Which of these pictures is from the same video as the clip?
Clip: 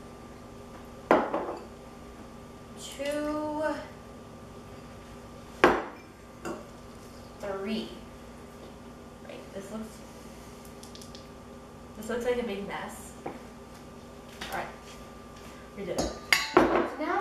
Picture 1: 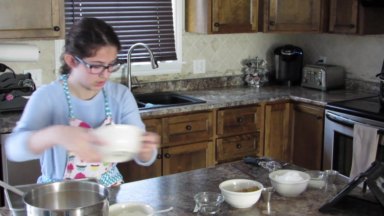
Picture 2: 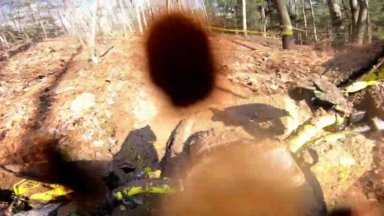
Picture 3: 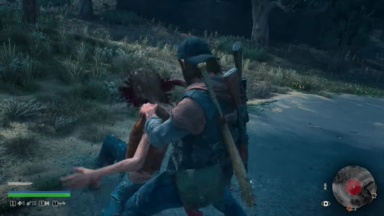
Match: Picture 1